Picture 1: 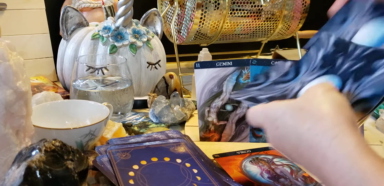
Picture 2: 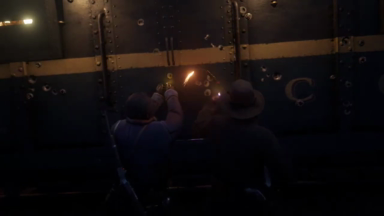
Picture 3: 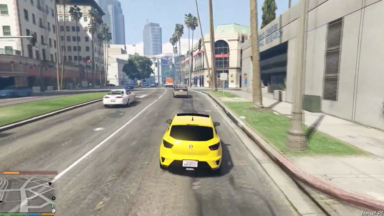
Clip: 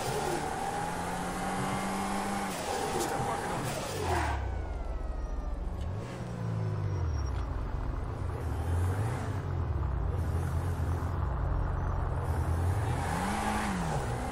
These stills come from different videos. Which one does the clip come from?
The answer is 3